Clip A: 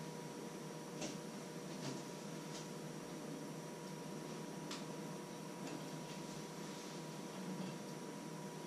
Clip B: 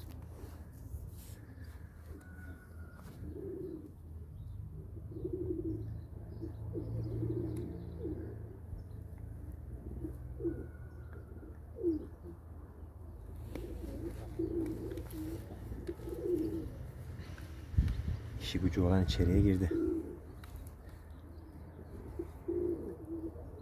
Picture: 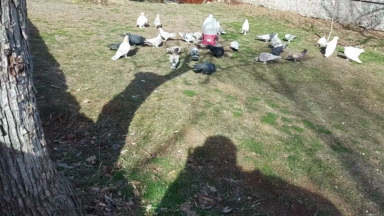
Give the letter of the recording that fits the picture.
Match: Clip B